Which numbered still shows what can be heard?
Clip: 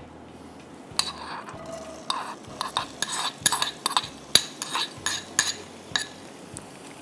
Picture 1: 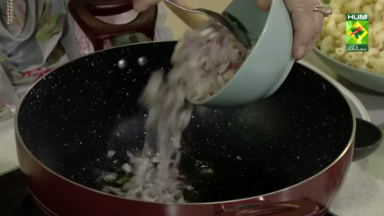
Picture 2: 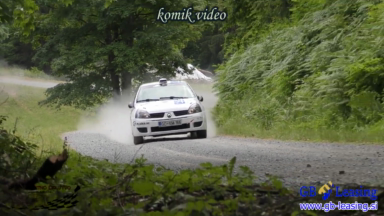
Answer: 1